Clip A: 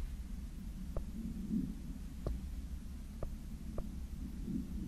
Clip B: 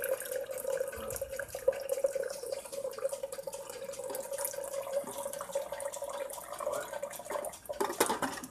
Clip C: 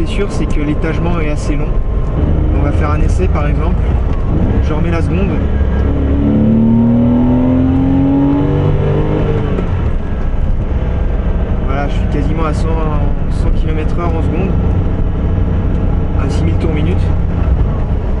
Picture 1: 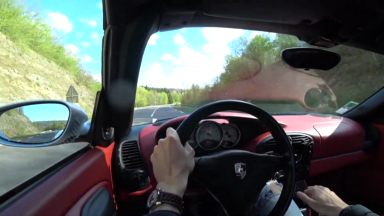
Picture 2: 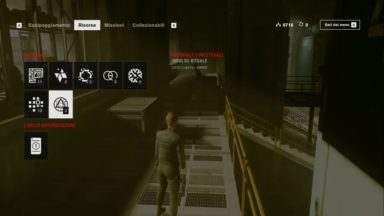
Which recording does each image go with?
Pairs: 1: C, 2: A